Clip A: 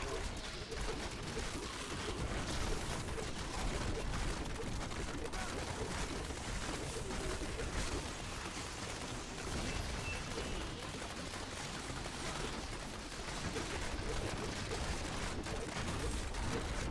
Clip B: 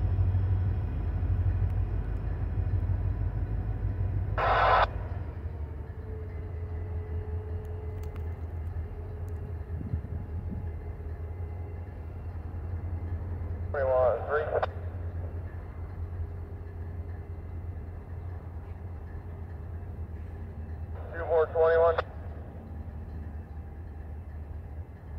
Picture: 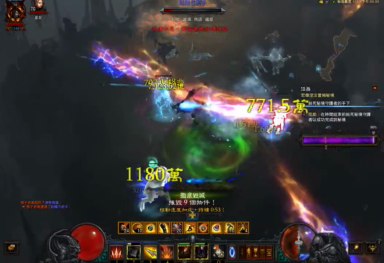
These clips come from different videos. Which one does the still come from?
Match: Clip A